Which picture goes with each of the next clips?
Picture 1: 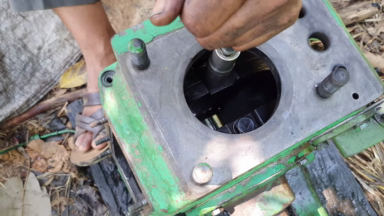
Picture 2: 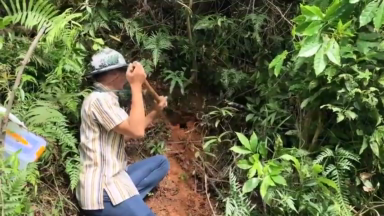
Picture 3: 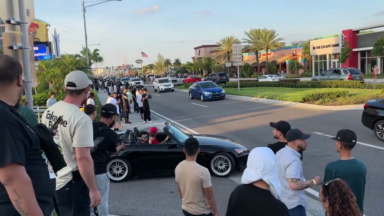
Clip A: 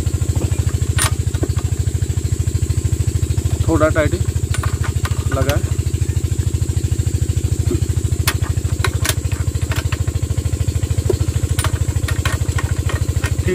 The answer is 1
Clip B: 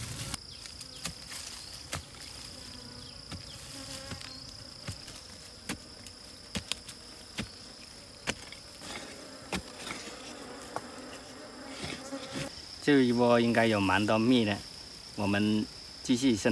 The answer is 2